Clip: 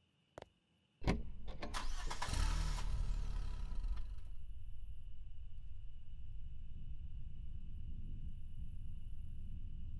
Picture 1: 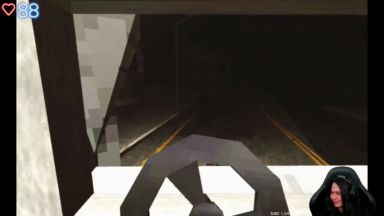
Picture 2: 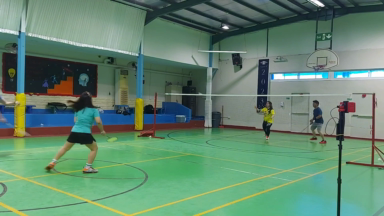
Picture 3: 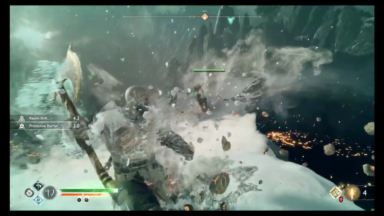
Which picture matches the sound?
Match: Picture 1